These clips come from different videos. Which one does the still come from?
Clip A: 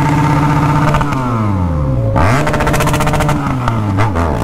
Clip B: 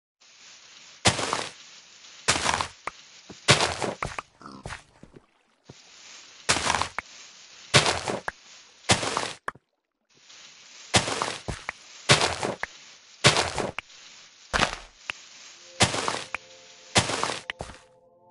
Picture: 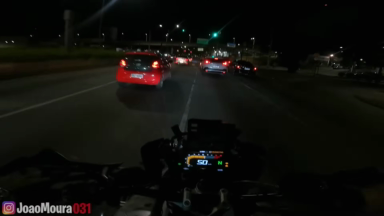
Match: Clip A